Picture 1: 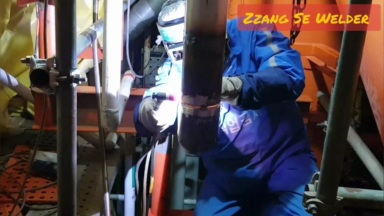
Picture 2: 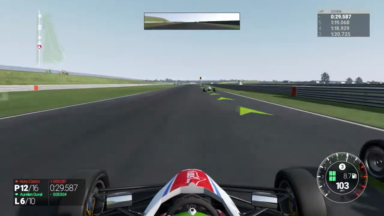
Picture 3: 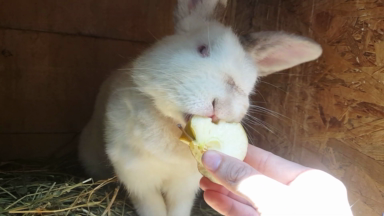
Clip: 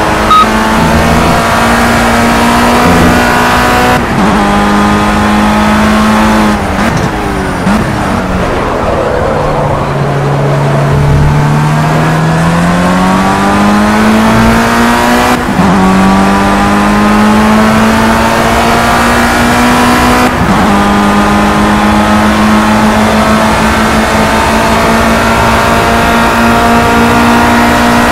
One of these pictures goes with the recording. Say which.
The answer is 2